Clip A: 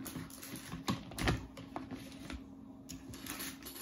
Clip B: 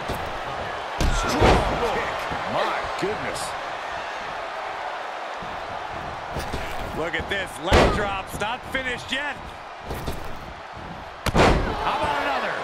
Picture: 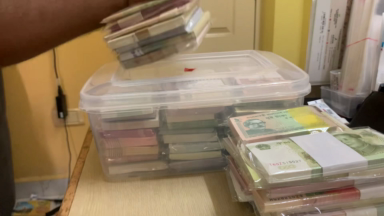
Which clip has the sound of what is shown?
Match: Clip A